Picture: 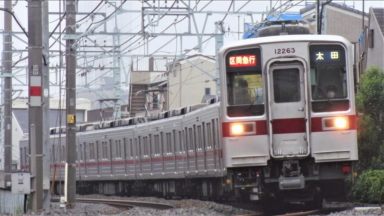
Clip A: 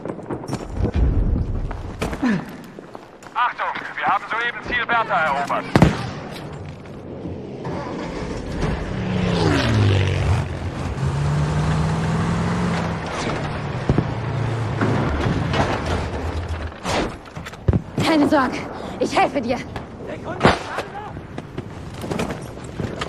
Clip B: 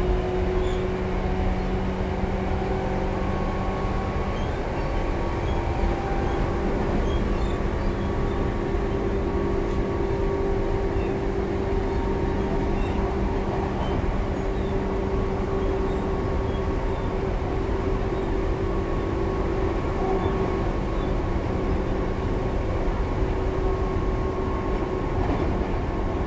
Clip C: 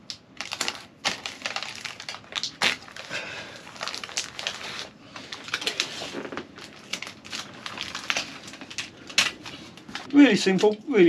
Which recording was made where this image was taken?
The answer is B